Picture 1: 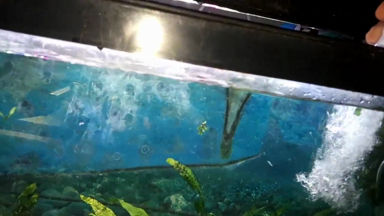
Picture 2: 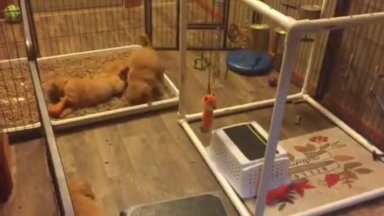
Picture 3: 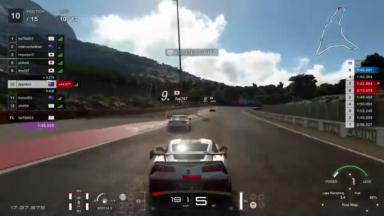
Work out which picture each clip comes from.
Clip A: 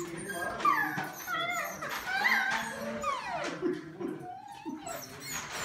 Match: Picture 2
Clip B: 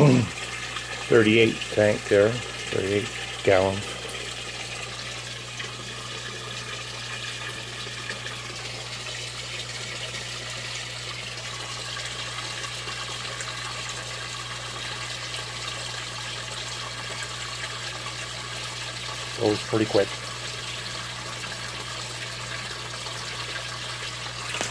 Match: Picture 1